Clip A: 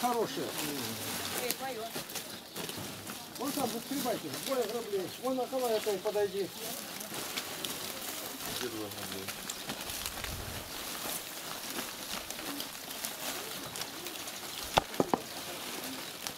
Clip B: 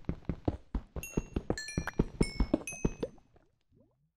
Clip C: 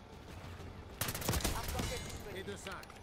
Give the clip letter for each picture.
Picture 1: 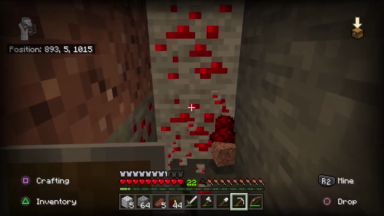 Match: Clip B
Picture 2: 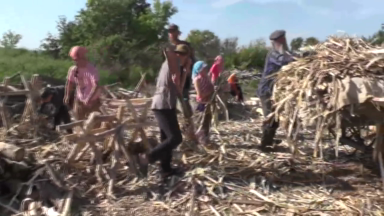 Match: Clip A